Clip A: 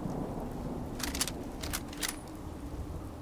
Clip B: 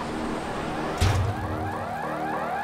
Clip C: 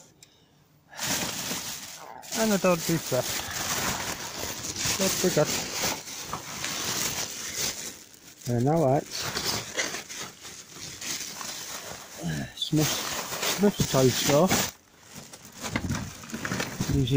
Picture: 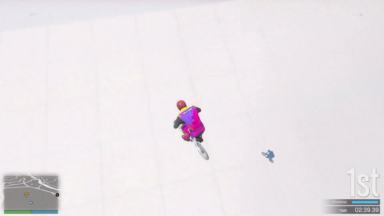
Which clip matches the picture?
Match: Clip B